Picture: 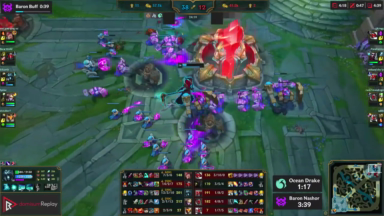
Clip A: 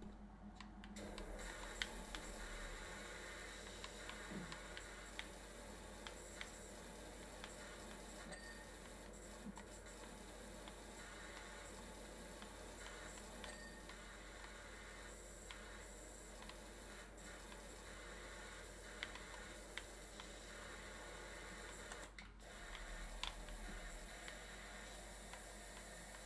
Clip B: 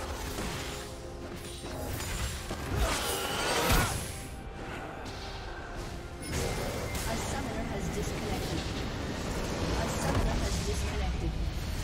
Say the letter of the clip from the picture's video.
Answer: B